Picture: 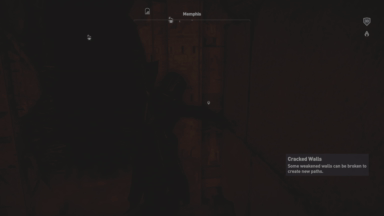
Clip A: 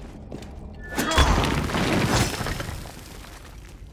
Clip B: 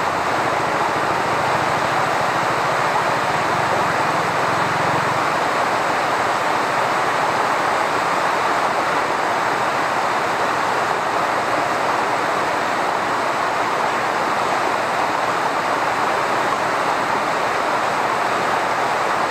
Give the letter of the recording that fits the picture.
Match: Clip A